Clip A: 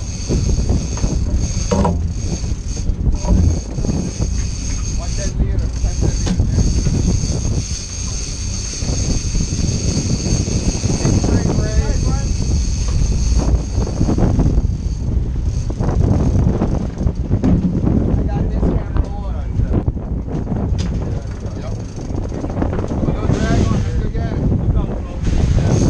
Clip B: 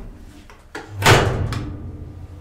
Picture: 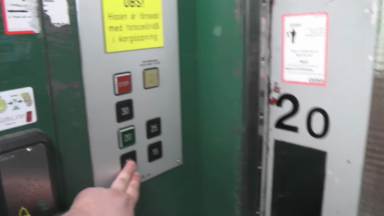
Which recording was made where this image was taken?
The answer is B